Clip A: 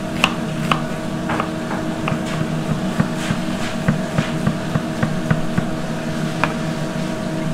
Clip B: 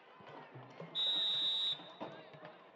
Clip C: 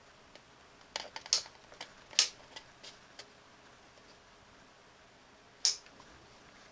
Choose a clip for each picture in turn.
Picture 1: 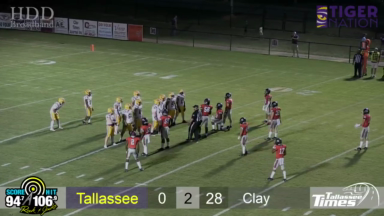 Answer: B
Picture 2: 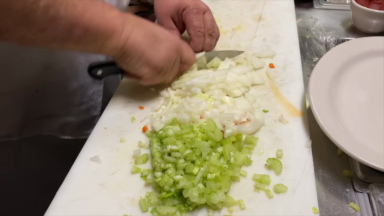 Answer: A